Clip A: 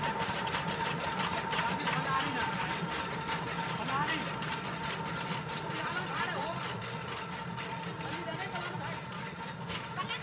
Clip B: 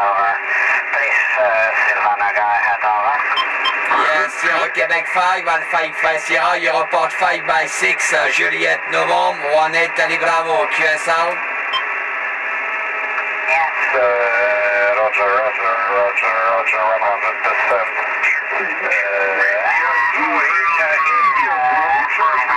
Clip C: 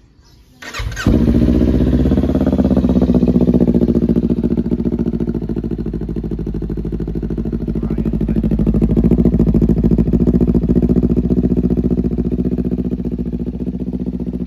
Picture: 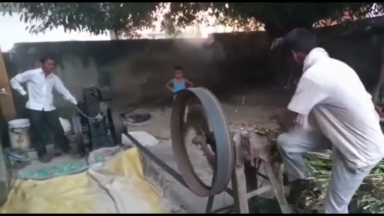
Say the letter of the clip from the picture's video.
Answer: A